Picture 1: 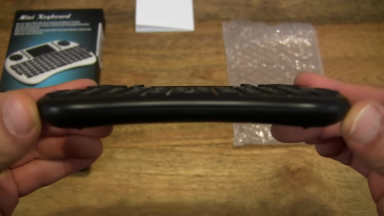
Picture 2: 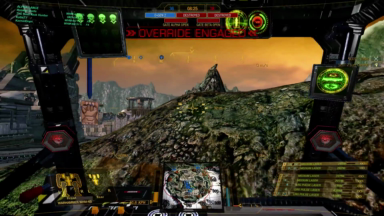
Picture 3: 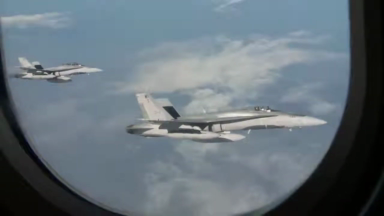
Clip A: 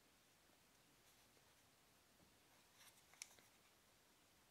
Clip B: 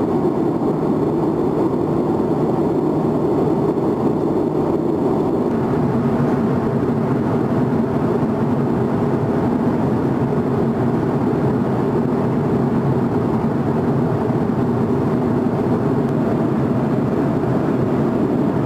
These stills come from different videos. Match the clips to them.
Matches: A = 1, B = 3